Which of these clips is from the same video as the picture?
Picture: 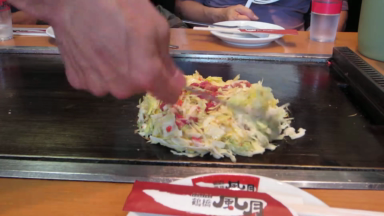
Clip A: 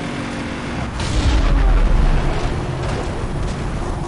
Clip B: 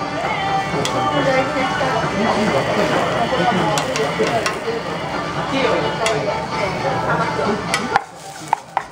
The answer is B